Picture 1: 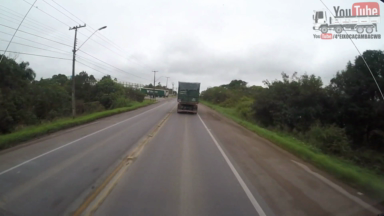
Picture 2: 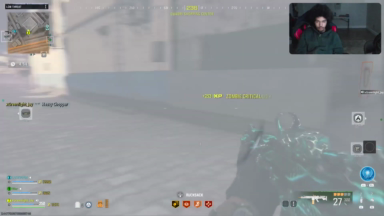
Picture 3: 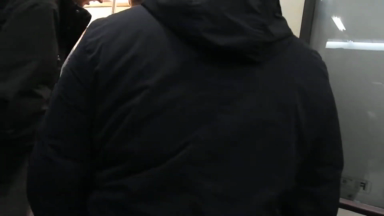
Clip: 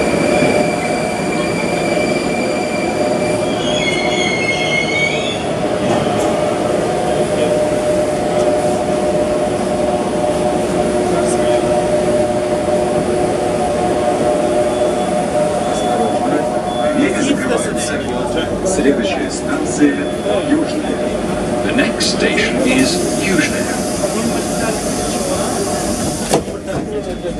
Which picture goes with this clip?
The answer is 3